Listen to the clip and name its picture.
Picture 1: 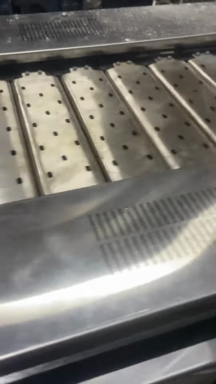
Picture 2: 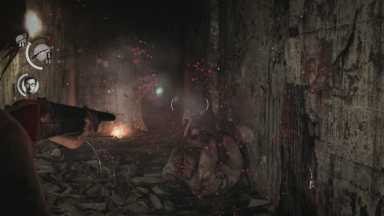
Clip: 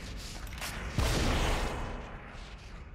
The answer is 2